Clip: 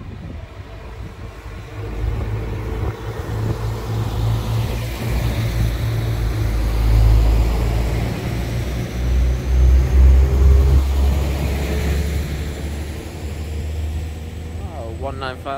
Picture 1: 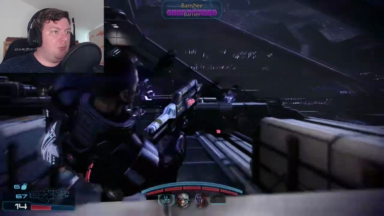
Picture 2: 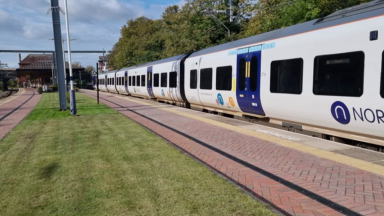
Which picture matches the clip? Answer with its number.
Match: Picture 2